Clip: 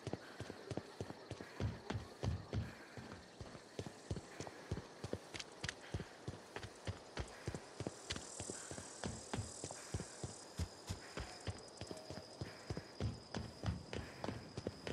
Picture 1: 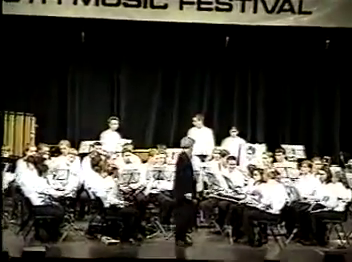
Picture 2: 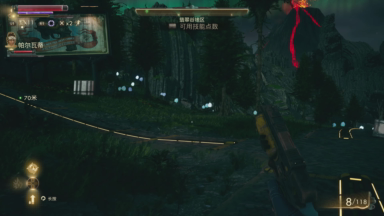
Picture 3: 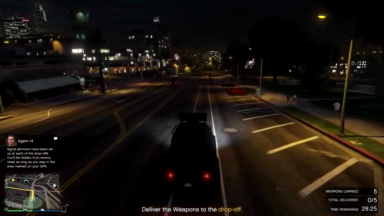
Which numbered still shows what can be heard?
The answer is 2